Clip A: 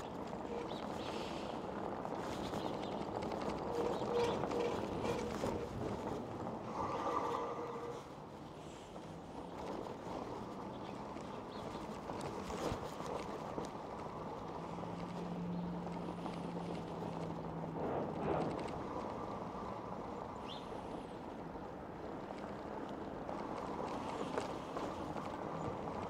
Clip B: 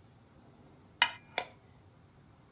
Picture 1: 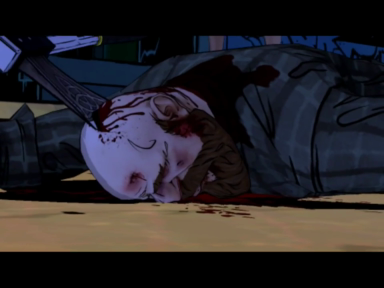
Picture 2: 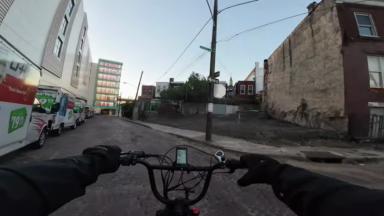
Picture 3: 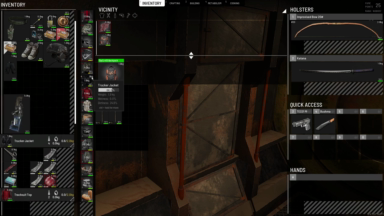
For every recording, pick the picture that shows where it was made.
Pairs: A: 2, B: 3